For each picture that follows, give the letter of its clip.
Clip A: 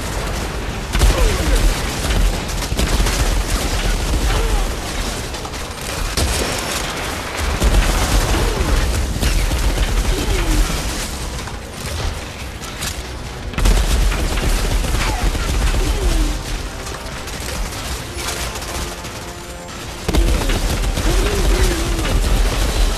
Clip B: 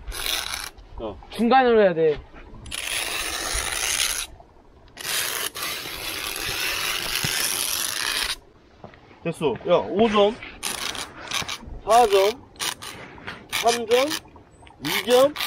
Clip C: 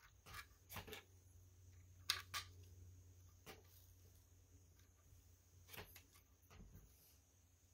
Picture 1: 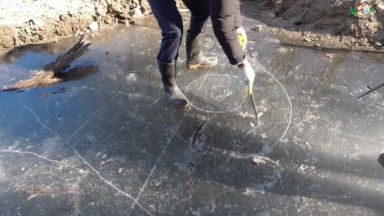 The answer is B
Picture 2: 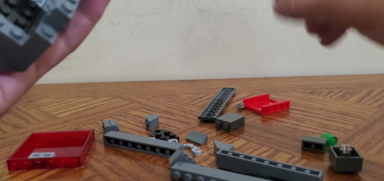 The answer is C